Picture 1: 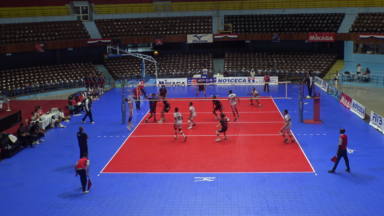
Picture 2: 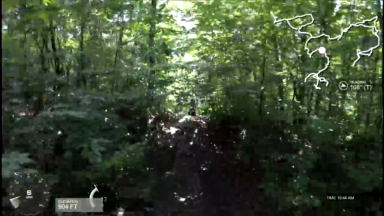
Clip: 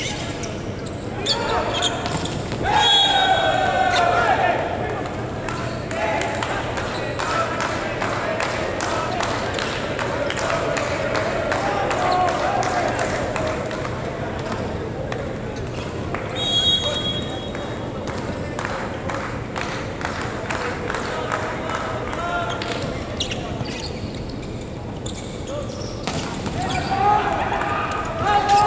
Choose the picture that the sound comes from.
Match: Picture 1